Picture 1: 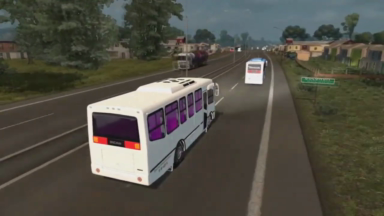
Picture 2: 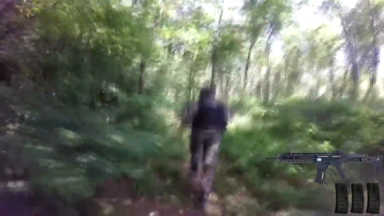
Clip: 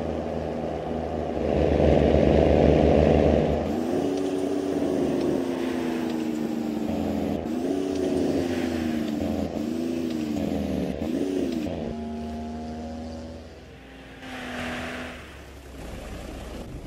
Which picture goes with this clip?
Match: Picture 1